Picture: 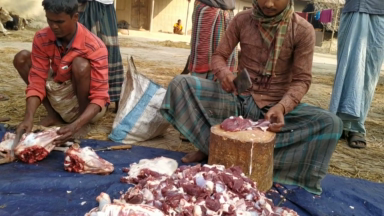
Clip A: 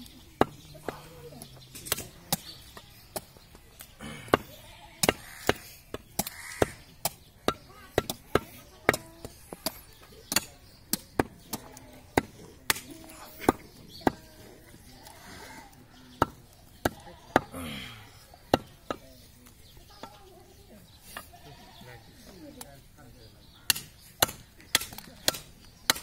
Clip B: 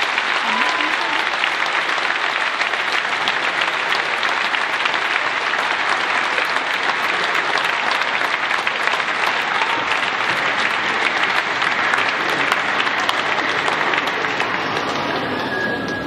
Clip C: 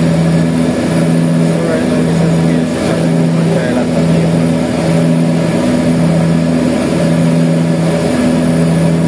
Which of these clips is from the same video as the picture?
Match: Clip A